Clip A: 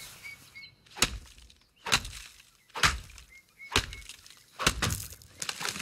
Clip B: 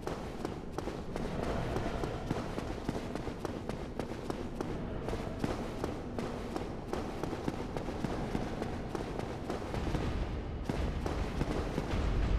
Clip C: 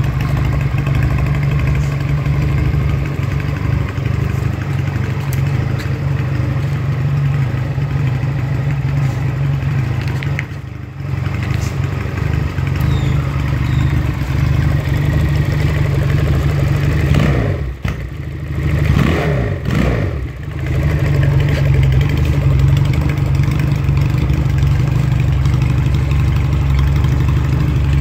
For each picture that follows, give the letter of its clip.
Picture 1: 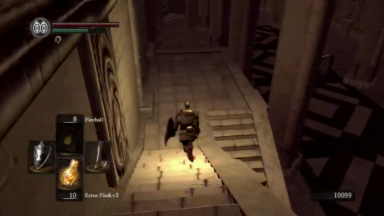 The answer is B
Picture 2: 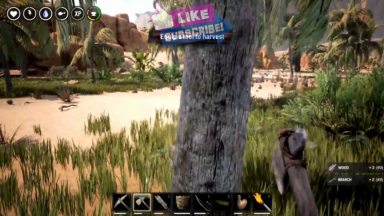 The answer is A